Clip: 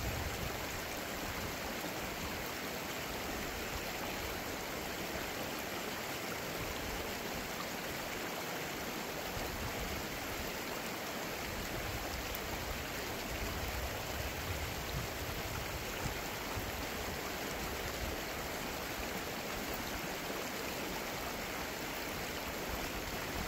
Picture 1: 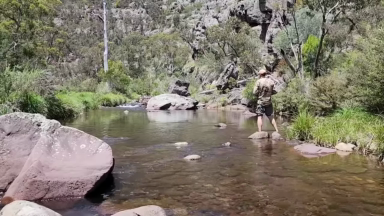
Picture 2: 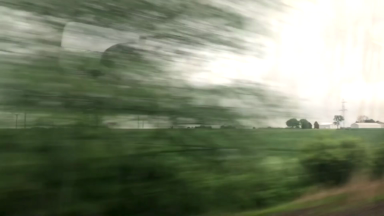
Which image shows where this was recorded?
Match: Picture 1